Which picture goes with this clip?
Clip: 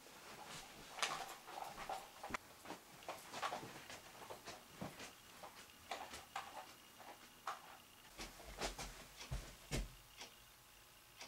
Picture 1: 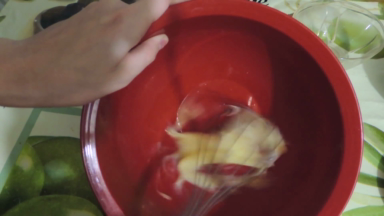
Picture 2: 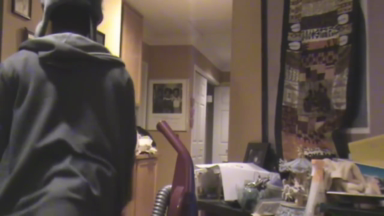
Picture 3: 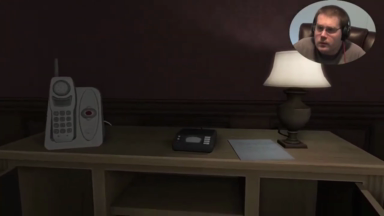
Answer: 2